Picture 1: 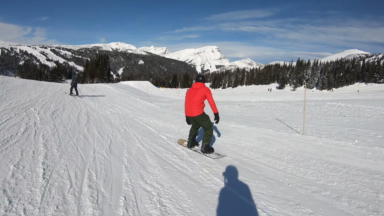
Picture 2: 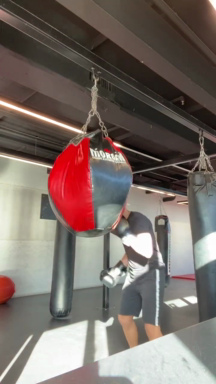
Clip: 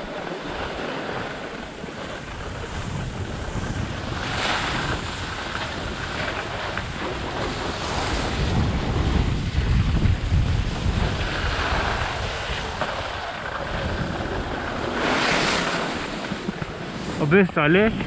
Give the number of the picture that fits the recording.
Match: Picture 1